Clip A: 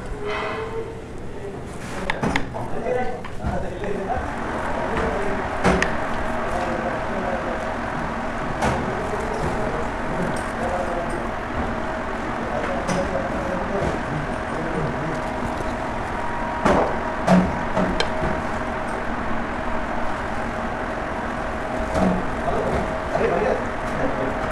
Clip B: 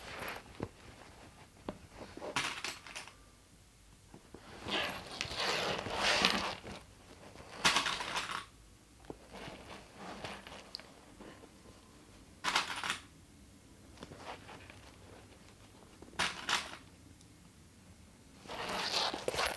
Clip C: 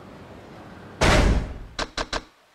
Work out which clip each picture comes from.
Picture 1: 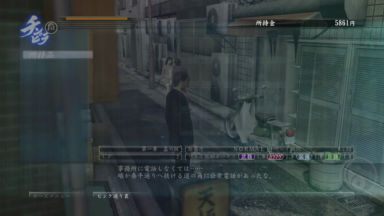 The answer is C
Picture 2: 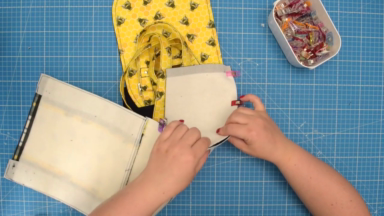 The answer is B